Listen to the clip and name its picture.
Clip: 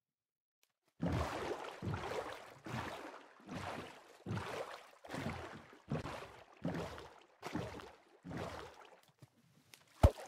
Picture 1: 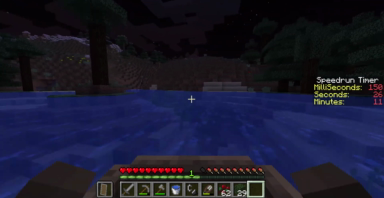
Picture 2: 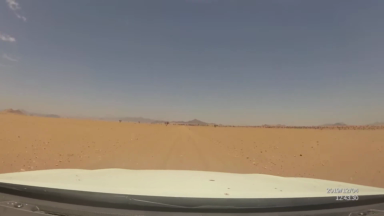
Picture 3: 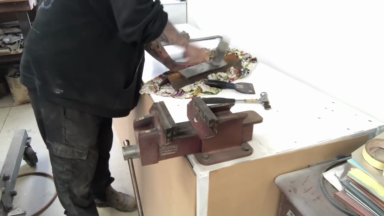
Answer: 1